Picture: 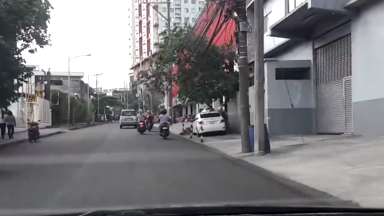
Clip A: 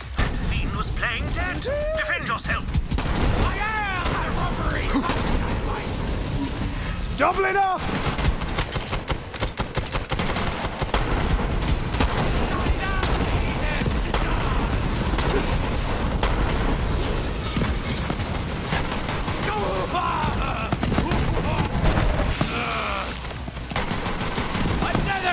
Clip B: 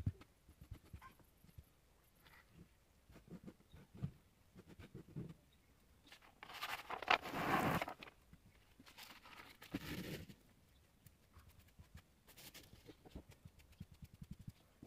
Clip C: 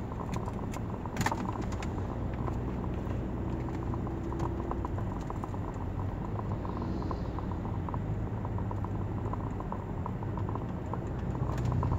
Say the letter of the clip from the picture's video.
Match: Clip C